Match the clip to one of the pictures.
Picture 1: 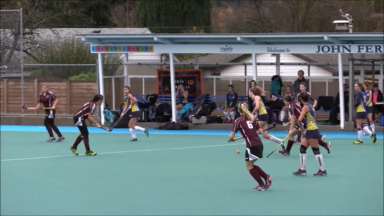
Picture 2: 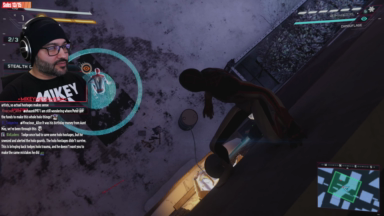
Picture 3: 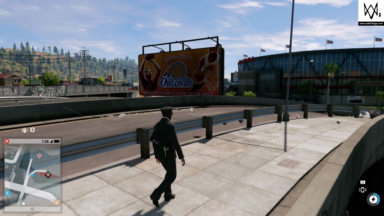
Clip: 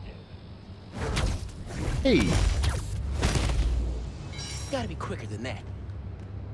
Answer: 2